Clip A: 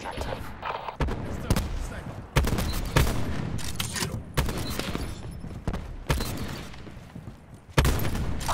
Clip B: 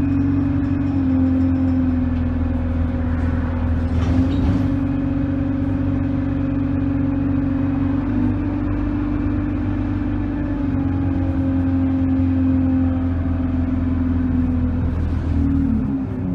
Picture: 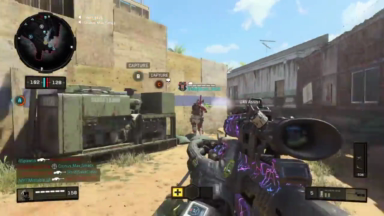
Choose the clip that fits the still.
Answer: A